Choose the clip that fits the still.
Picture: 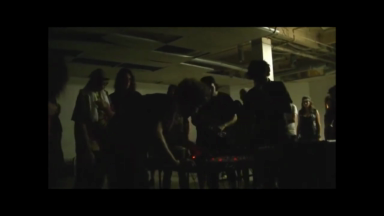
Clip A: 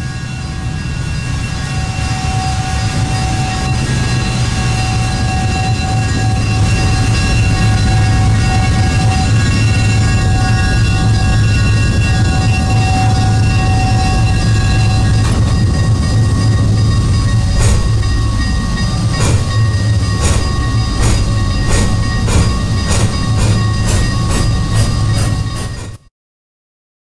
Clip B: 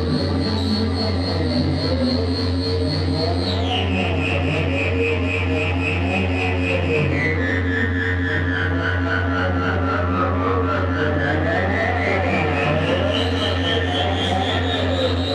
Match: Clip B